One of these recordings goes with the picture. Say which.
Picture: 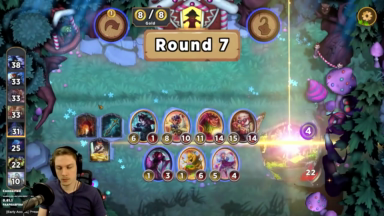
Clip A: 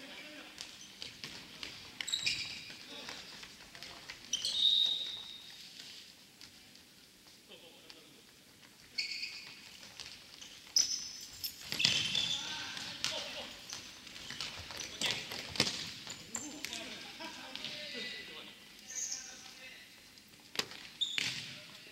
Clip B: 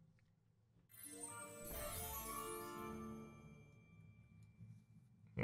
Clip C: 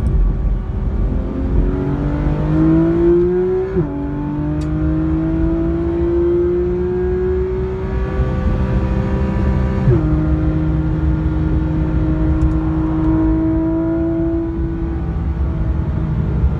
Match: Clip B